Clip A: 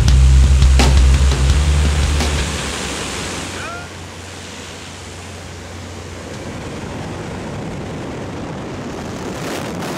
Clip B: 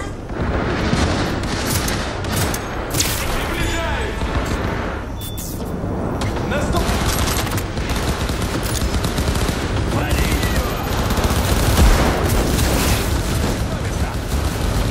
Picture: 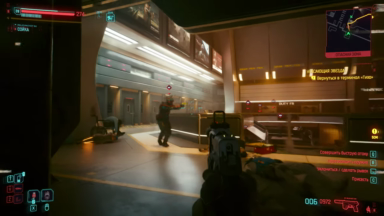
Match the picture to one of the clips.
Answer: B